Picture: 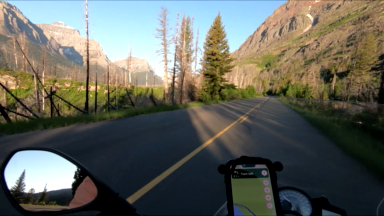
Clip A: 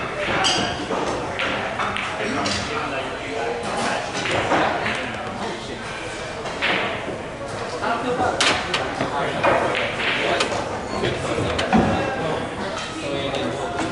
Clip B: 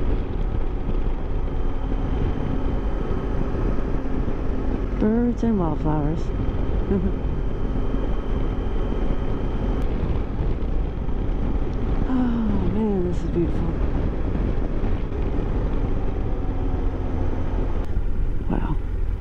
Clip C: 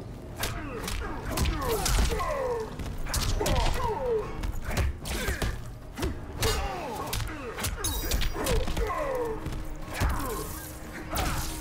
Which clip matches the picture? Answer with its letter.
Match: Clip B